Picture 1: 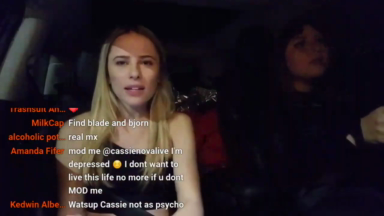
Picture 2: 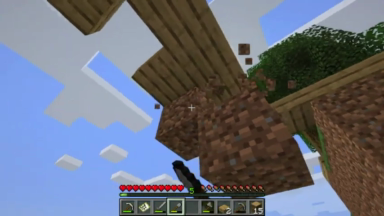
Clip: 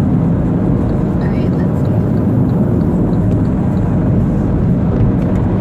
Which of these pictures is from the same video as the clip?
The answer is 1